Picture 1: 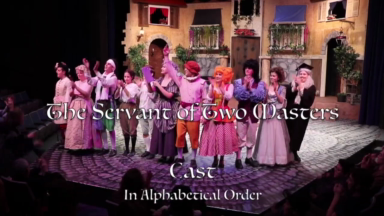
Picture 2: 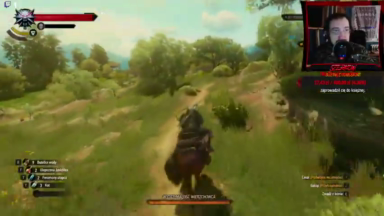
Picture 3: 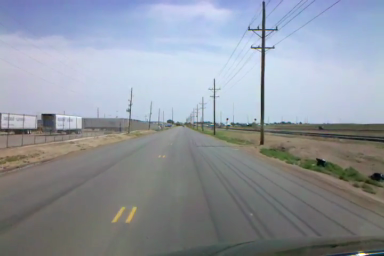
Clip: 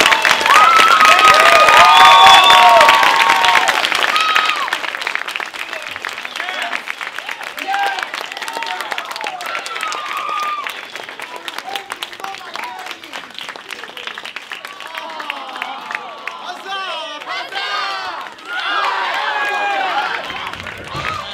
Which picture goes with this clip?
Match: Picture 1